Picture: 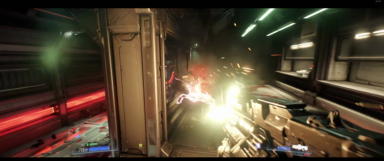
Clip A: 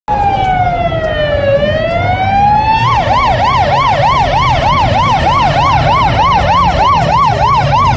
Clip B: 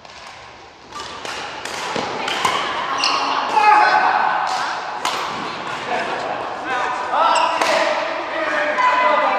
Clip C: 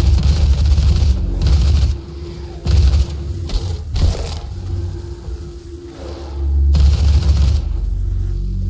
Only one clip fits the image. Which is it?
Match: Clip C